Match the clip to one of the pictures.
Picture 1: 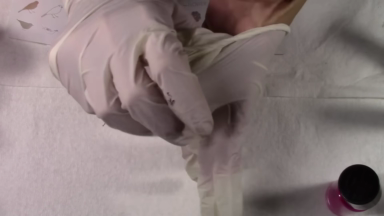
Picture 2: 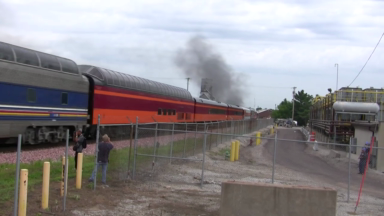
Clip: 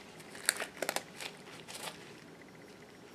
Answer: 1